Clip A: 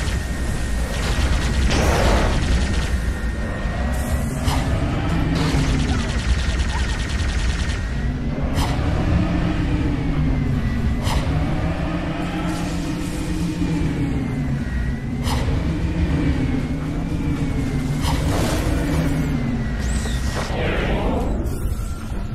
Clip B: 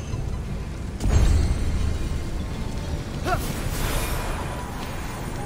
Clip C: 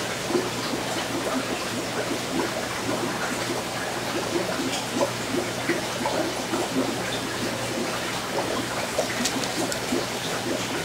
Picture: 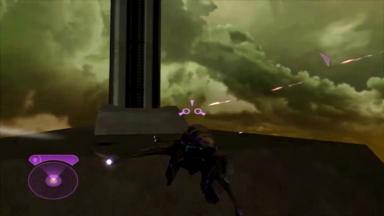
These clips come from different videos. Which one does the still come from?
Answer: A